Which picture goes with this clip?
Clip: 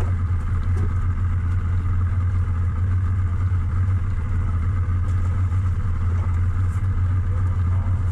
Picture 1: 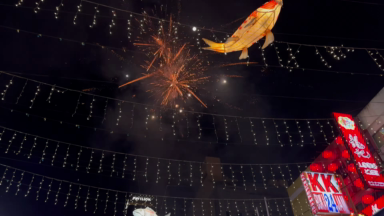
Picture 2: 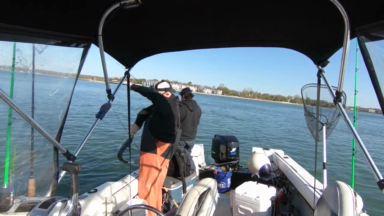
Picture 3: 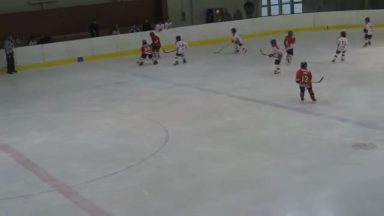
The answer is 2